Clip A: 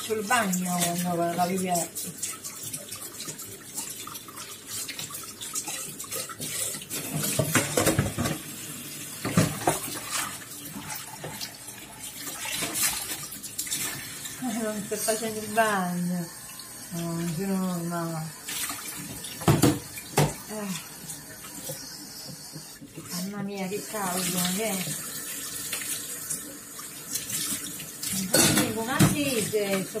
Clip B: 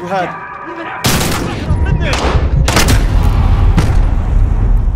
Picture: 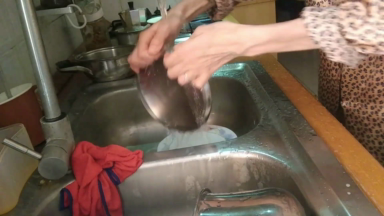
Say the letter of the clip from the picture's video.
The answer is A